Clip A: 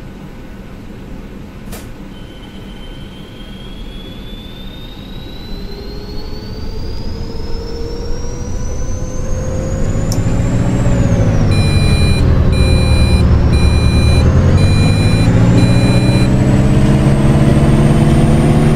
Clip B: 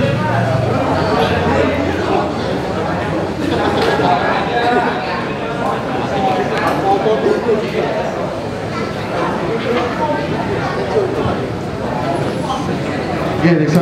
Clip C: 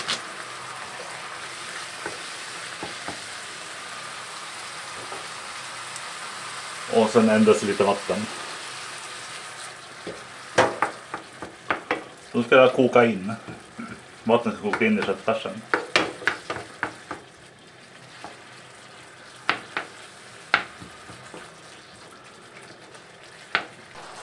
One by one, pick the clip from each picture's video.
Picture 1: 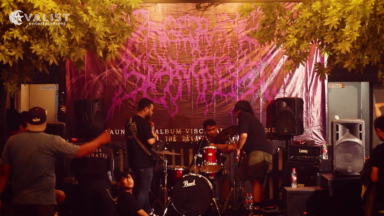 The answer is B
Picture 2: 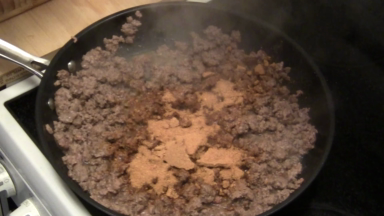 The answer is C